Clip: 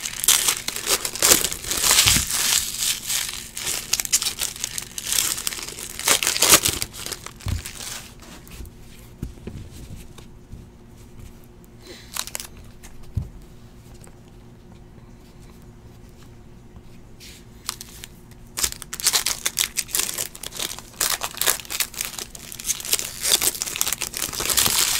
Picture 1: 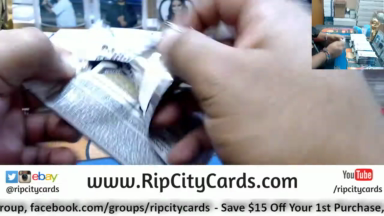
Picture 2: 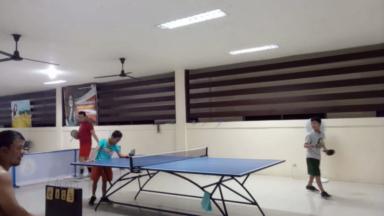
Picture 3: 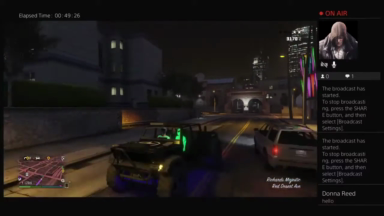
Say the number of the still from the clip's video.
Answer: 1